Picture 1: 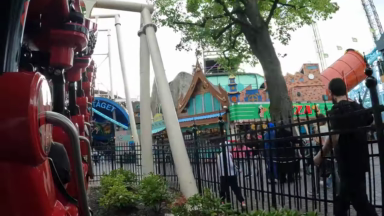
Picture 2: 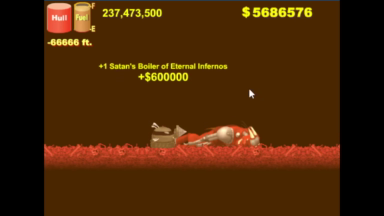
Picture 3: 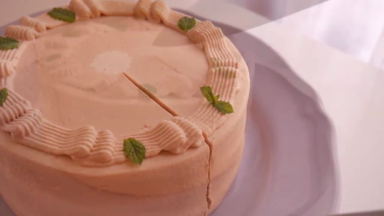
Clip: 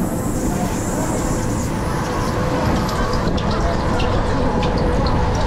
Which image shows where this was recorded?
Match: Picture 1